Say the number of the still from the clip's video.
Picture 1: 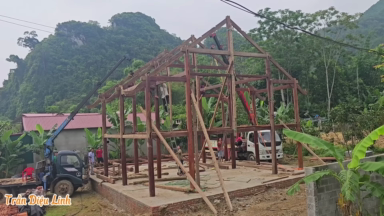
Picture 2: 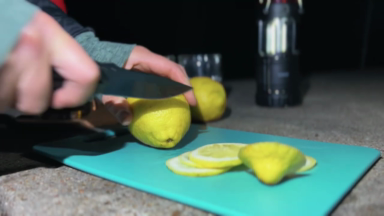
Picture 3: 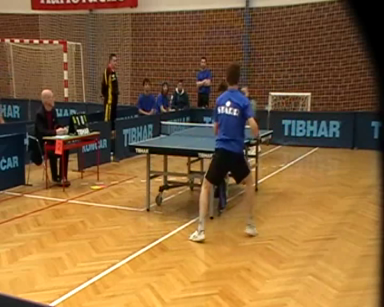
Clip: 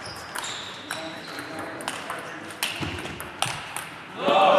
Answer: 3